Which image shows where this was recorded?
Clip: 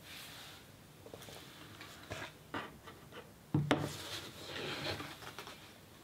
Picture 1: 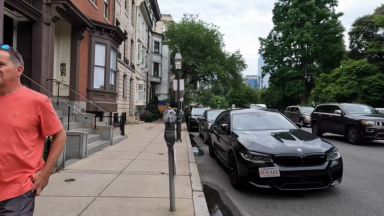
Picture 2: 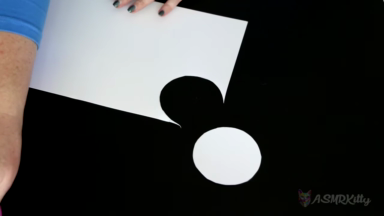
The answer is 2